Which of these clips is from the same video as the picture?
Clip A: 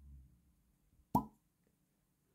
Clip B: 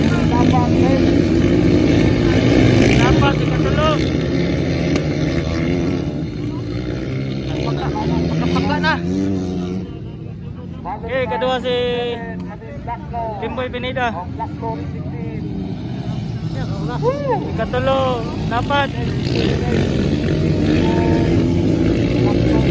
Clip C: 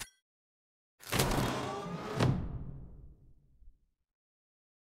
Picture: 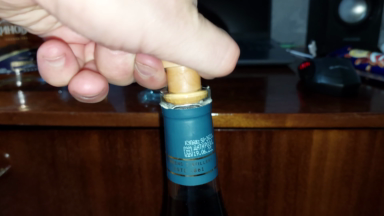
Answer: A